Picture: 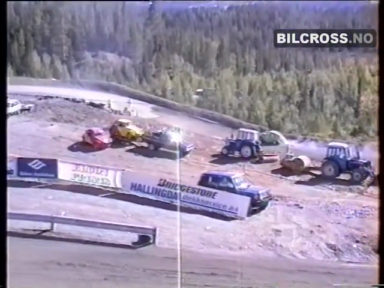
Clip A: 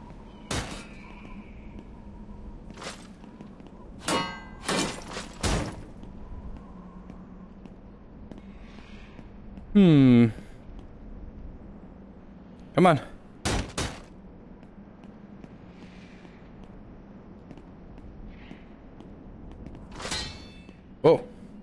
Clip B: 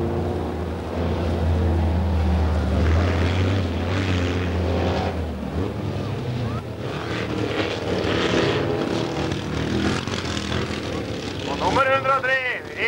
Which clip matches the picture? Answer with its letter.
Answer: B